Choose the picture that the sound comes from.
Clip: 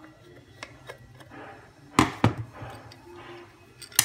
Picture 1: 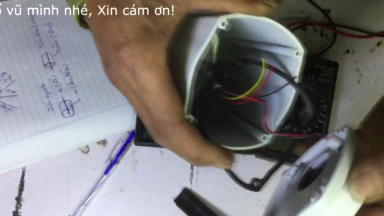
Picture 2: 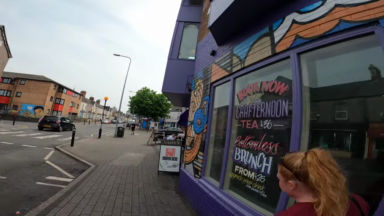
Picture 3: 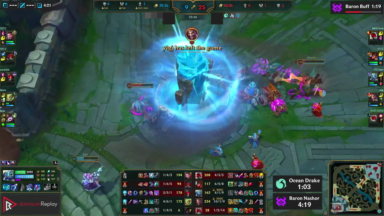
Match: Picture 1